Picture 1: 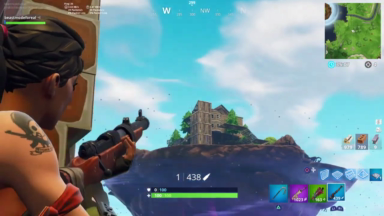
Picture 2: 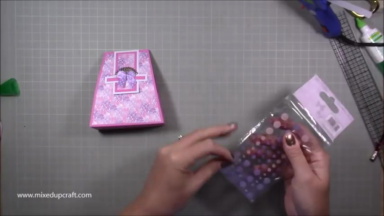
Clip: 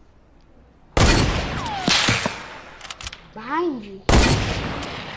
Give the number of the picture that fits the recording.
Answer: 1